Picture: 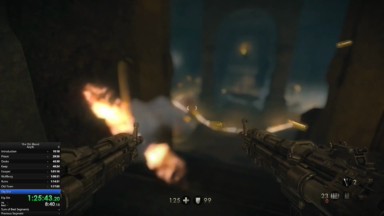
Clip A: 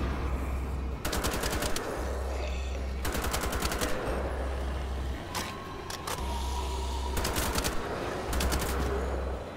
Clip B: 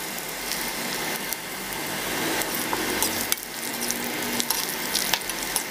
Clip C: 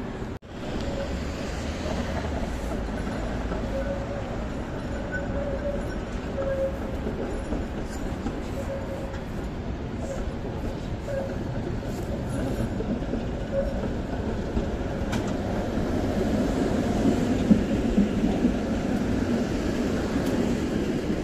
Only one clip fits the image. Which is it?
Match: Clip A